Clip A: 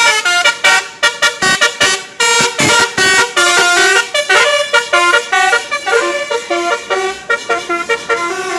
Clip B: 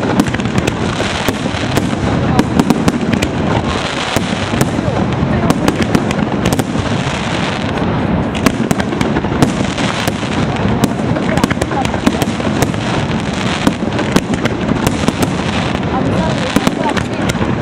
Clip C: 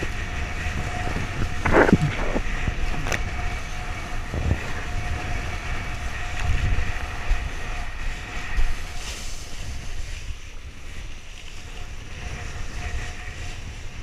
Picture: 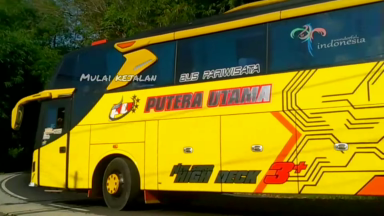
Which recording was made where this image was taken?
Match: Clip A